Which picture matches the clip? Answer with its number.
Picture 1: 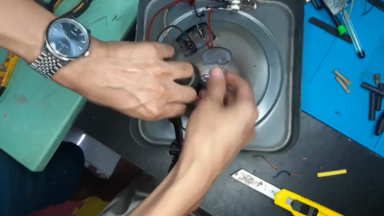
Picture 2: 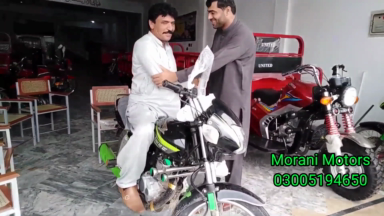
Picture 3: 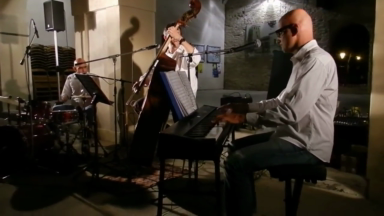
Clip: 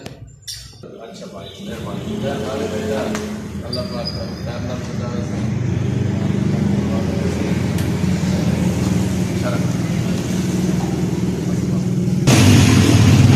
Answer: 2